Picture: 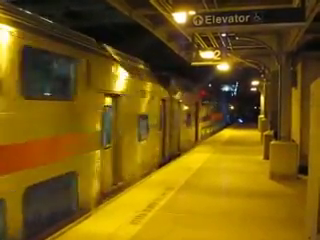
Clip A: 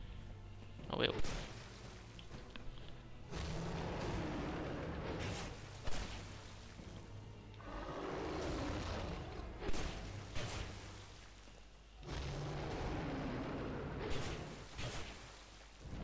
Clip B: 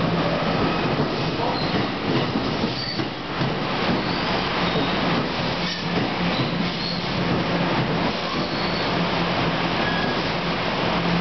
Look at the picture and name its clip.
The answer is B